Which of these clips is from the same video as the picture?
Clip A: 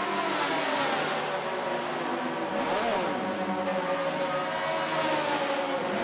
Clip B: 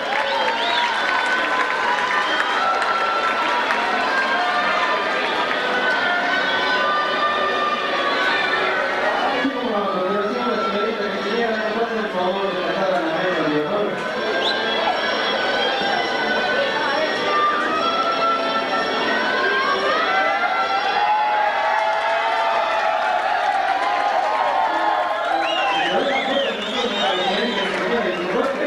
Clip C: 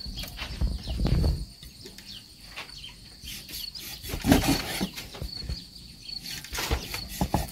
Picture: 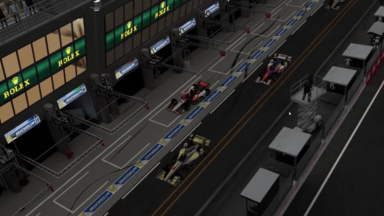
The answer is A